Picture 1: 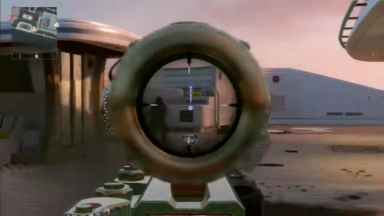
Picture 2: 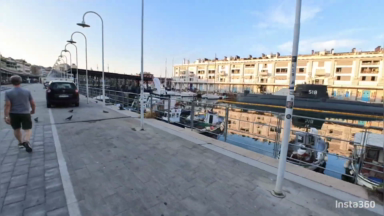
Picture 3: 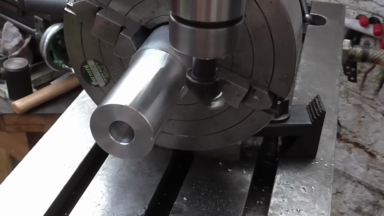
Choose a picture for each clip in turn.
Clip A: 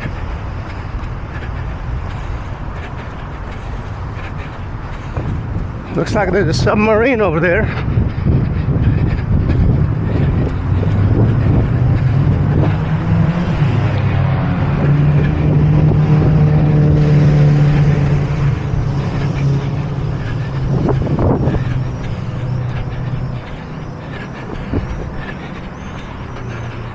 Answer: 2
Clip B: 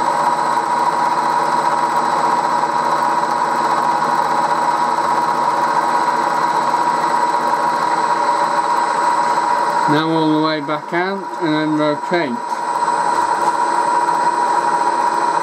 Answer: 3